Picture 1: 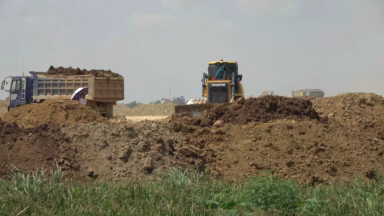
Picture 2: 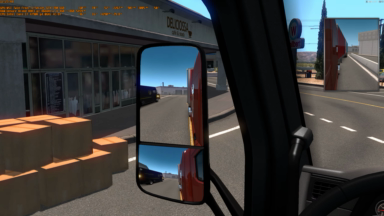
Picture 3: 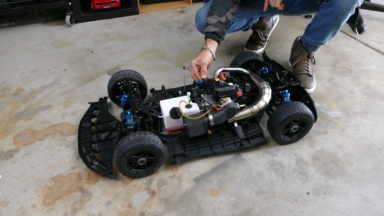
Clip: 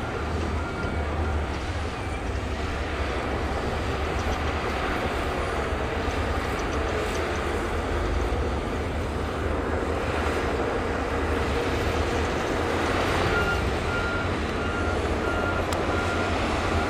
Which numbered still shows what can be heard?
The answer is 1